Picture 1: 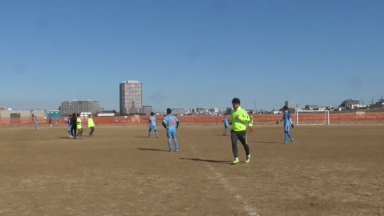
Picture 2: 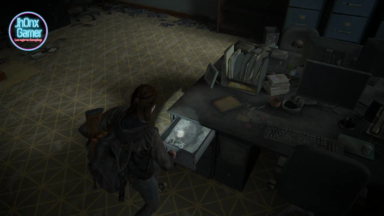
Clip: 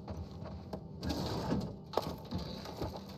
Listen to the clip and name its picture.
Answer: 2